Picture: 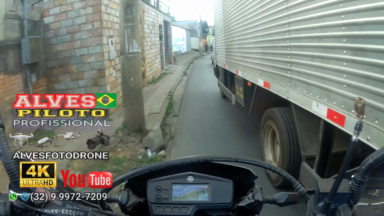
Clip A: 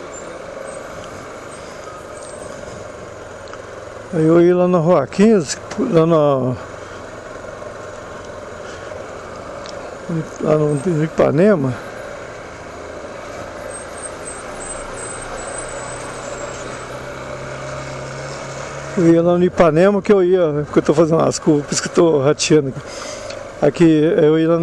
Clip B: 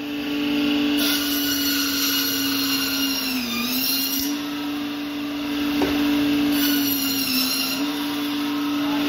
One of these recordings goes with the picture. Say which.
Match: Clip A